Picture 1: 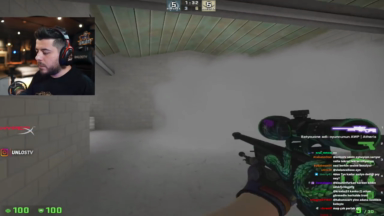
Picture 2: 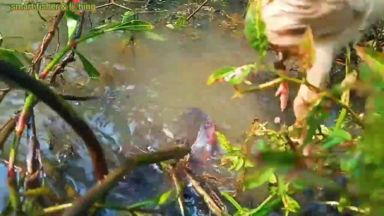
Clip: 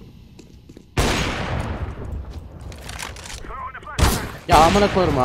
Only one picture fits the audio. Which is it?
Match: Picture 1